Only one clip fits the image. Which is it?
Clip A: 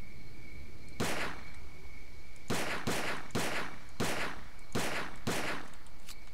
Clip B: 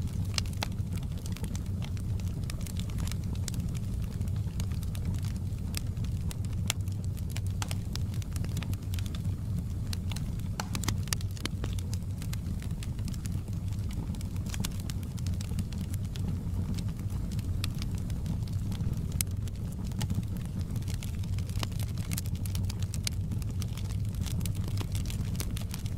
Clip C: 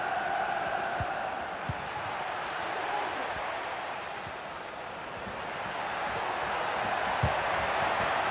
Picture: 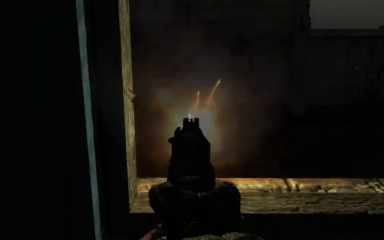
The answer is A